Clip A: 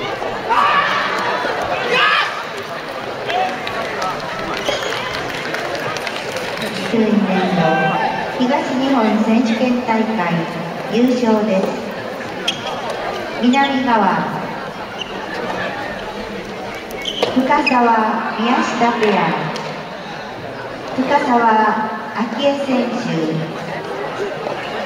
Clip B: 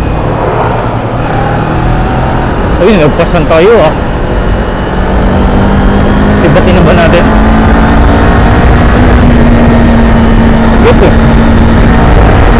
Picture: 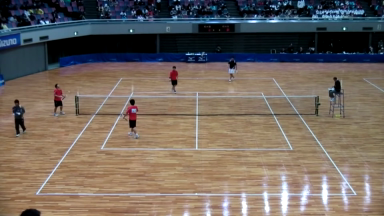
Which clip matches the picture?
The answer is A